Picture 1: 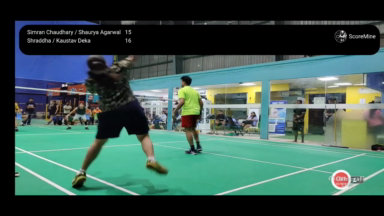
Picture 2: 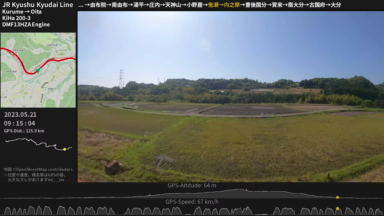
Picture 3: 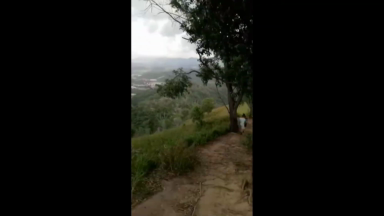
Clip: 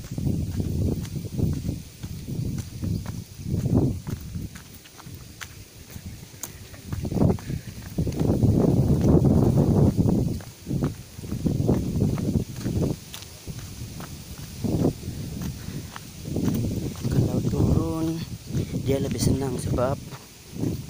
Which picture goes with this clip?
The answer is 3